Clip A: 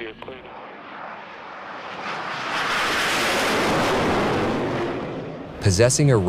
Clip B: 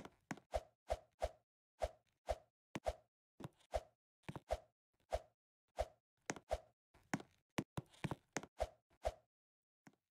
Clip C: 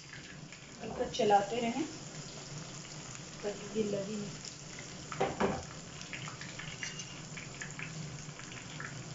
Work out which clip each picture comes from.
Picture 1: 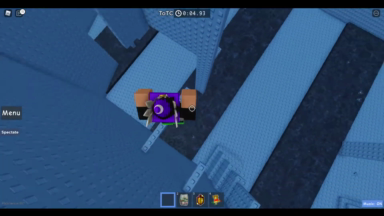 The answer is B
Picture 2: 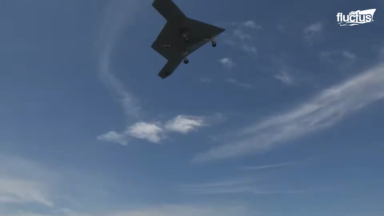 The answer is A